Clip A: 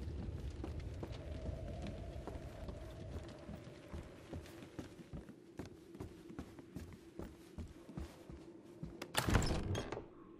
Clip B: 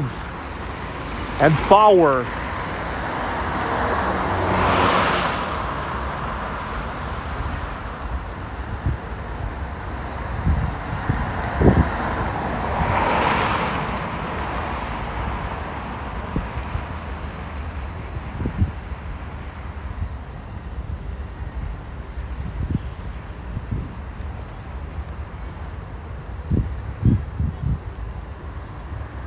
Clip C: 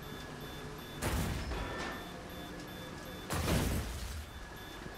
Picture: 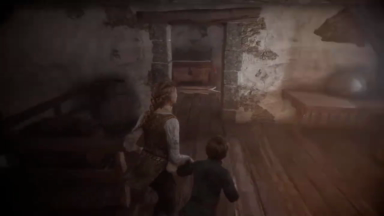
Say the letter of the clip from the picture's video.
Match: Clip A